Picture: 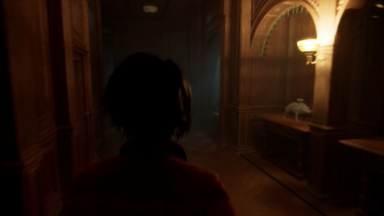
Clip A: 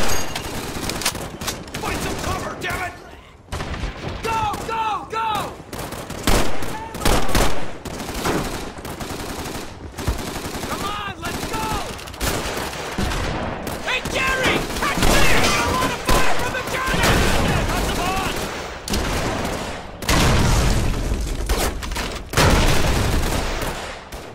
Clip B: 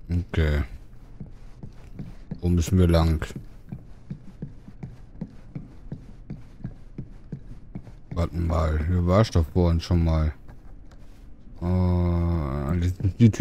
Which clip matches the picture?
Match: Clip B